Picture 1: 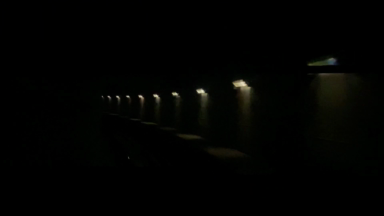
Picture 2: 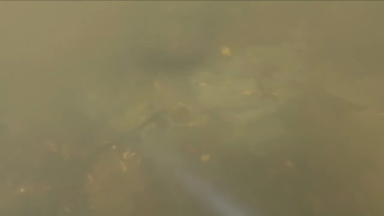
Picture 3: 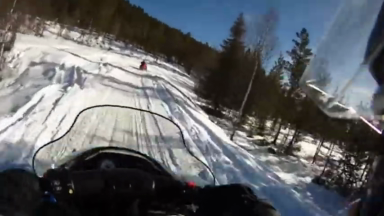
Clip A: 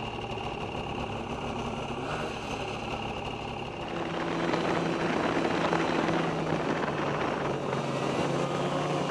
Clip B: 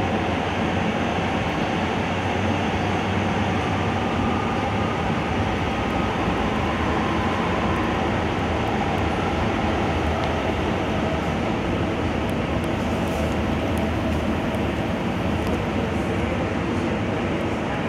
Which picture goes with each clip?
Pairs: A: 3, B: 1